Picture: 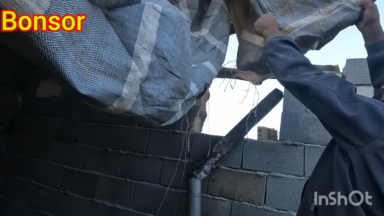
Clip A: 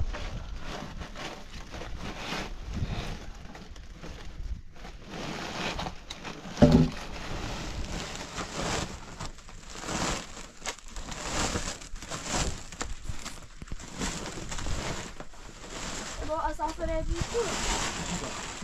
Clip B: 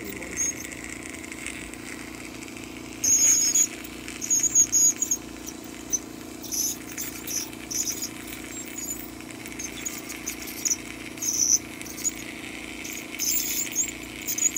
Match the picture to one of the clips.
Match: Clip A